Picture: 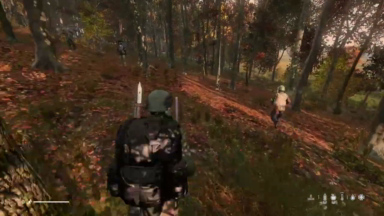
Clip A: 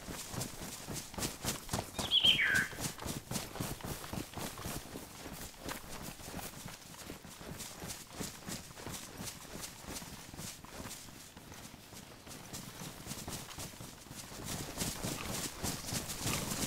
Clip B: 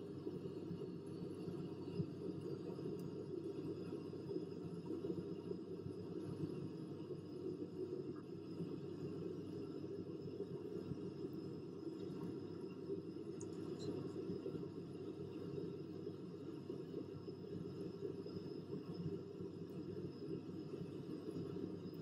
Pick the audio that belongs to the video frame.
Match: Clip A